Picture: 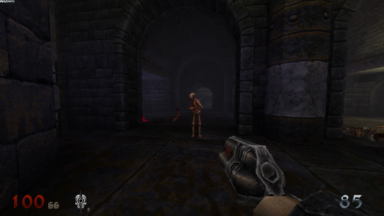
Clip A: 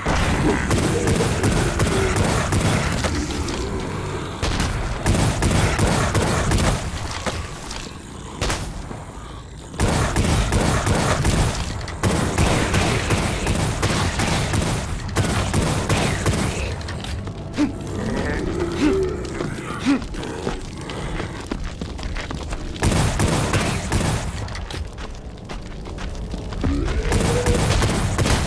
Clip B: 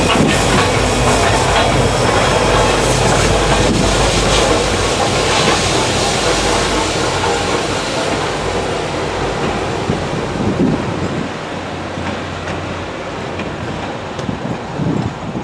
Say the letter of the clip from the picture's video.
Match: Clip A